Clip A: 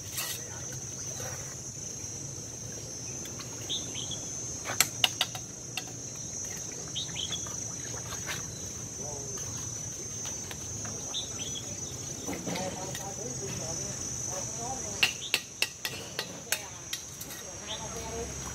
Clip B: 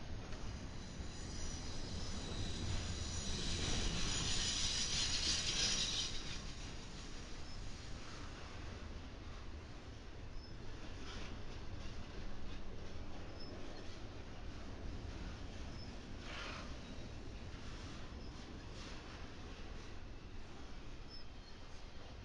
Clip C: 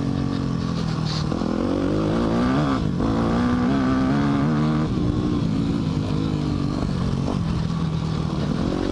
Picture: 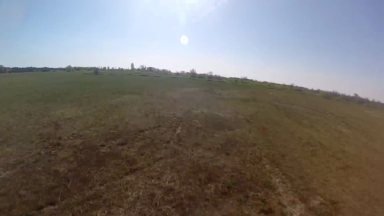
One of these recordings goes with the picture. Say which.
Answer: C